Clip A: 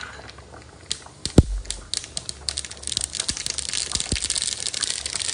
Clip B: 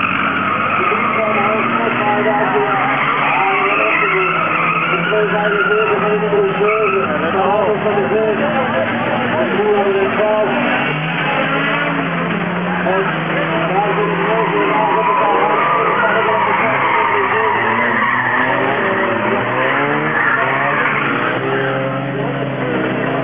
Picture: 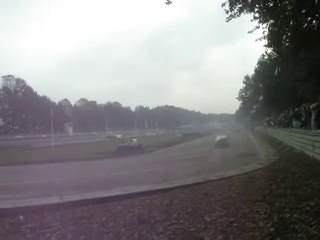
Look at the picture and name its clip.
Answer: B